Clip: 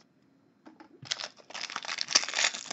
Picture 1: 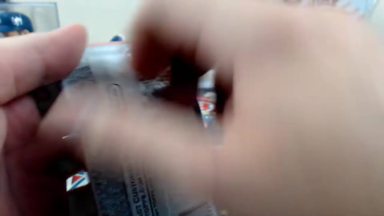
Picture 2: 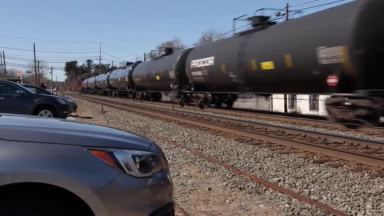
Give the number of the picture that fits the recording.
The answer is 1